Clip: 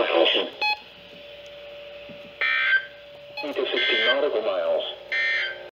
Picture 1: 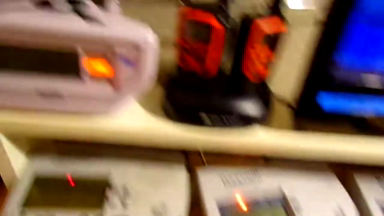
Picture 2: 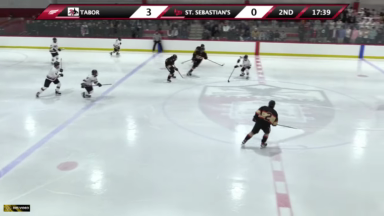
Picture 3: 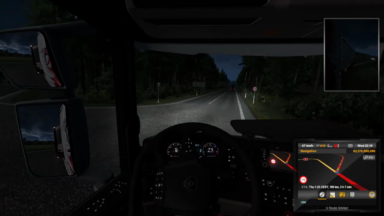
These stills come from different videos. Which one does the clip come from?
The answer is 1